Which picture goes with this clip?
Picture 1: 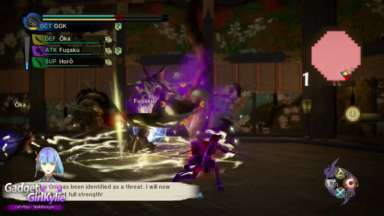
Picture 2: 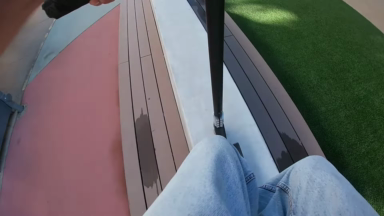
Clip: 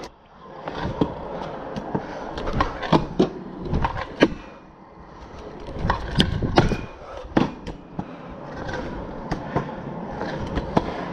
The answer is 2